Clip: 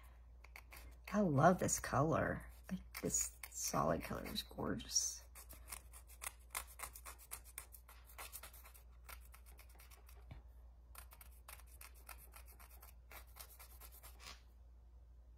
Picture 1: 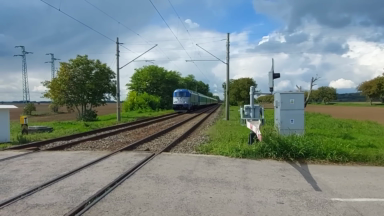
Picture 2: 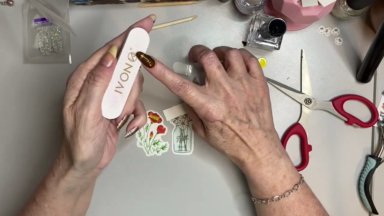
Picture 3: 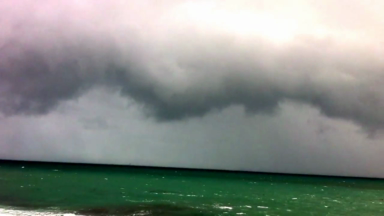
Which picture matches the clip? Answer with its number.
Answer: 2